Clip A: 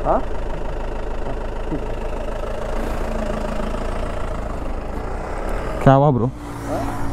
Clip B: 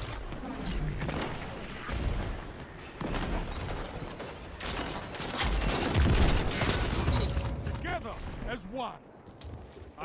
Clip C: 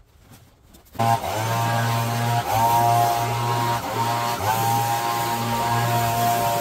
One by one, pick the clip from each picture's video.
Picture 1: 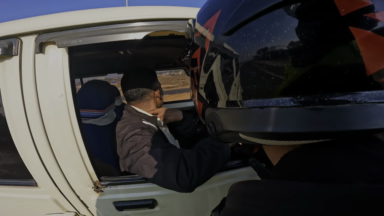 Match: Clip A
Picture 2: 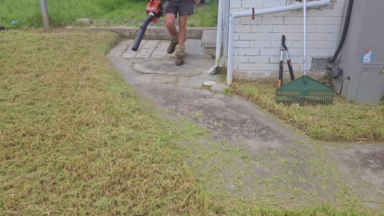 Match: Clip C